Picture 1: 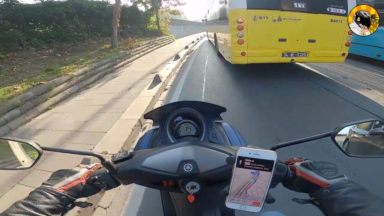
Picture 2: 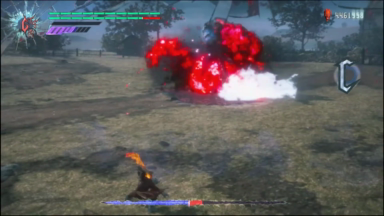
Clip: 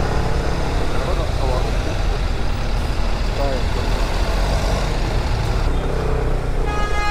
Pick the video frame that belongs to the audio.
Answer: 1